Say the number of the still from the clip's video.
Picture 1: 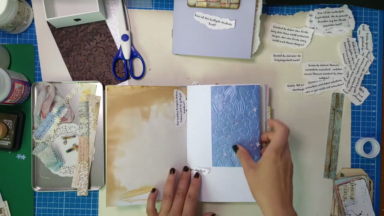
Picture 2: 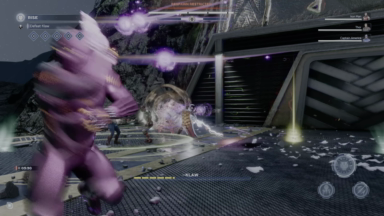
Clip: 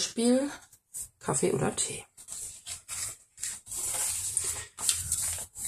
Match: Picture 1